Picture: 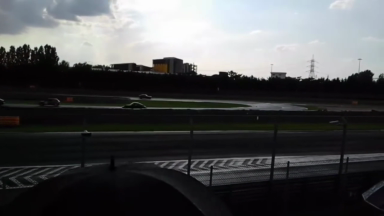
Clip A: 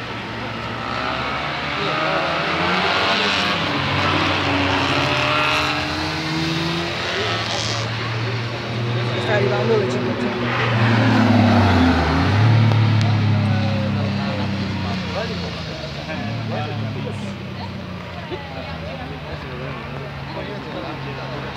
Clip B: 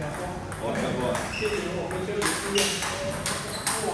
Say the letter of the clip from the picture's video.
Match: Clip A